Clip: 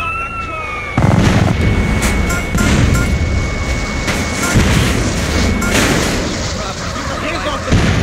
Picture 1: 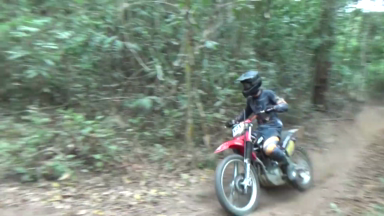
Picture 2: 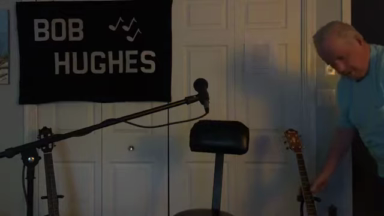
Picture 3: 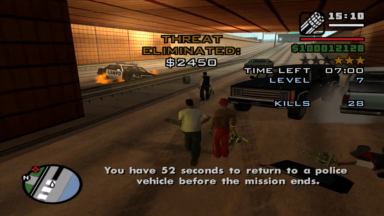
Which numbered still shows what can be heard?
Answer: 3